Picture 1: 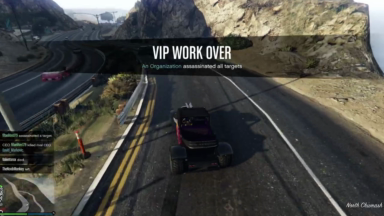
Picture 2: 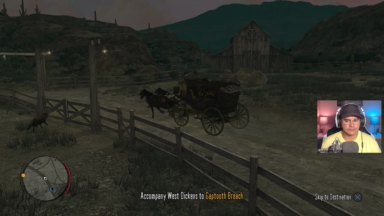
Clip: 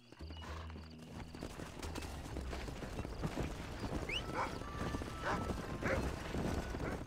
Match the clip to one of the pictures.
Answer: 2